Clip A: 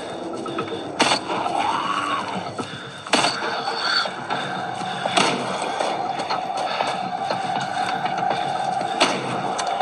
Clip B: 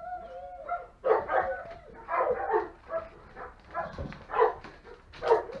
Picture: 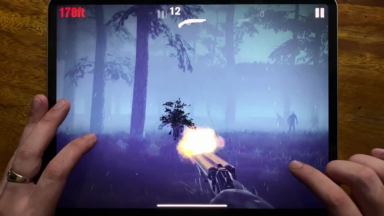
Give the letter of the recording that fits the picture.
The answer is A